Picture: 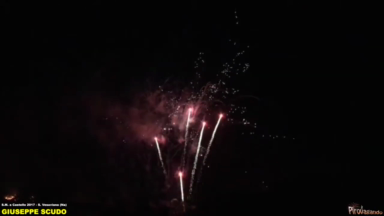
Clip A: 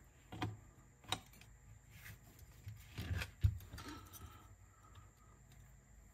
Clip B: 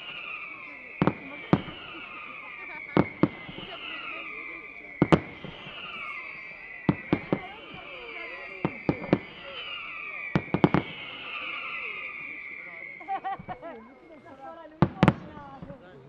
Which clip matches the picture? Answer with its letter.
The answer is B